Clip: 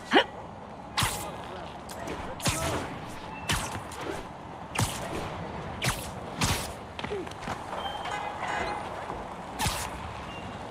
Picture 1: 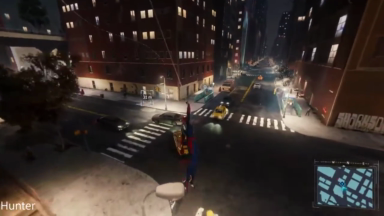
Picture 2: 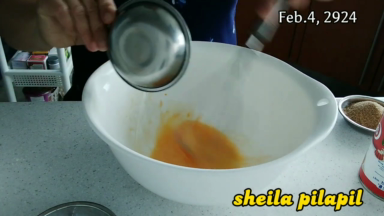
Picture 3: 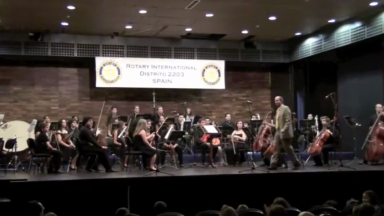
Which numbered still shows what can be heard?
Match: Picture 1